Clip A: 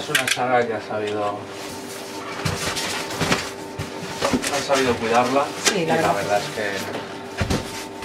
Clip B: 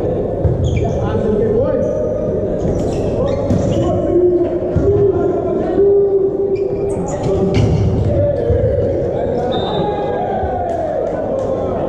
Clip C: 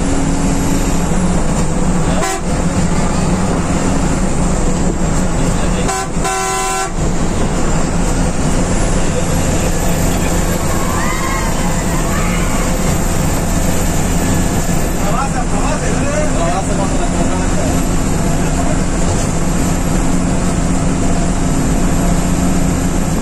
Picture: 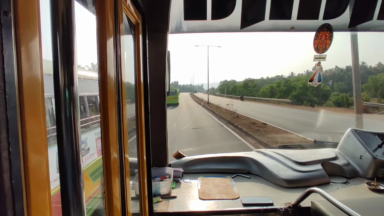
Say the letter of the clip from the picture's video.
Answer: C